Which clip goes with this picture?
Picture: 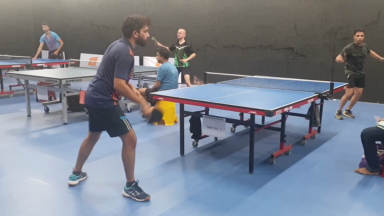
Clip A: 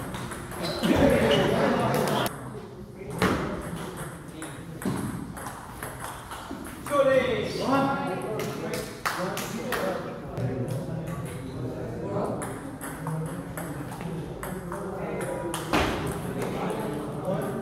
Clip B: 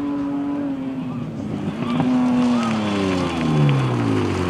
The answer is A